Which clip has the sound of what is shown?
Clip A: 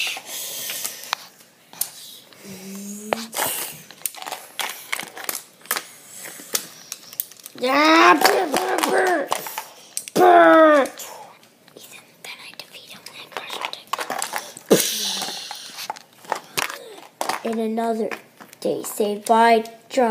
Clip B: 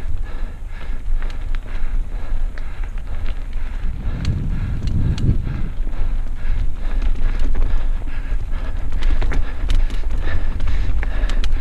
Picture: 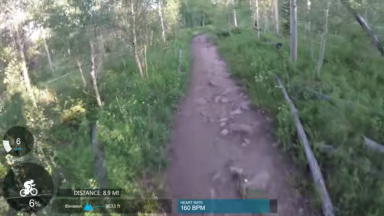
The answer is B